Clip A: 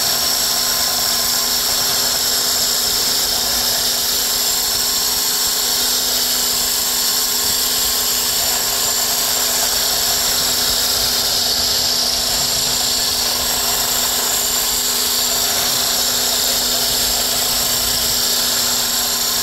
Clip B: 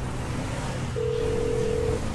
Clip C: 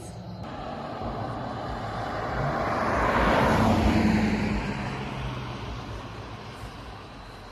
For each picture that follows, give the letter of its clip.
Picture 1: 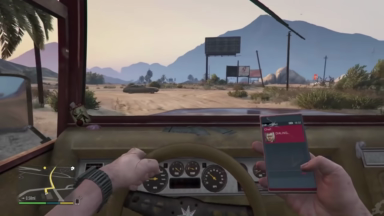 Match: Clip B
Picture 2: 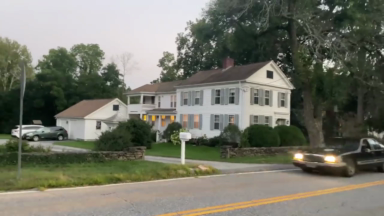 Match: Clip C